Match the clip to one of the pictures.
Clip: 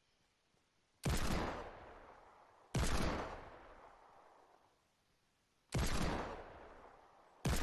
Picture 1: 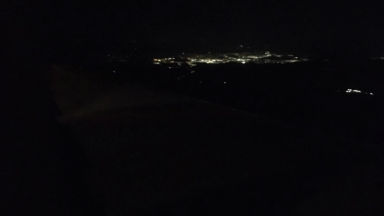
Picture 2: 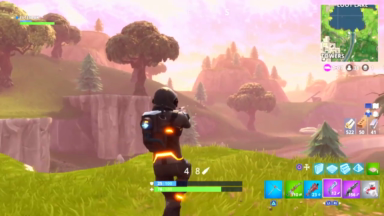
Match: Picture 2